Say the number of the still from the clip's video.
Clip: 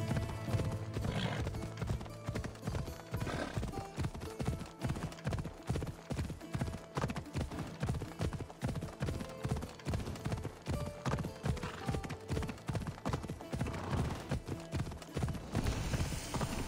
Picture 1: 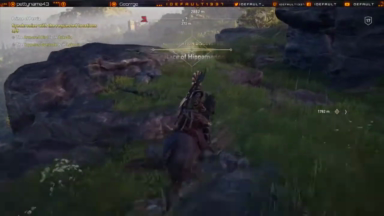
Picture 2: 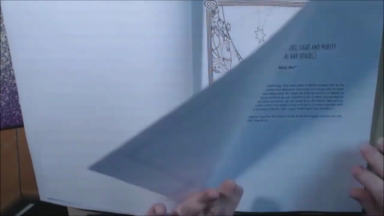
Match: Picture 1